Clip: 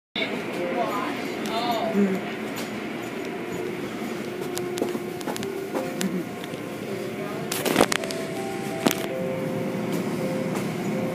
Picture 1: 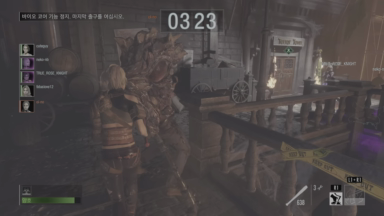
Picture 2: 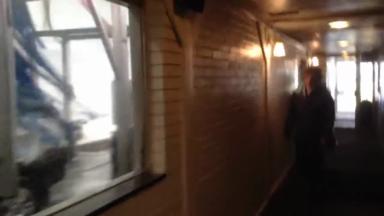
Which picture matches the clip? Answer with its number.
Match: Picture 2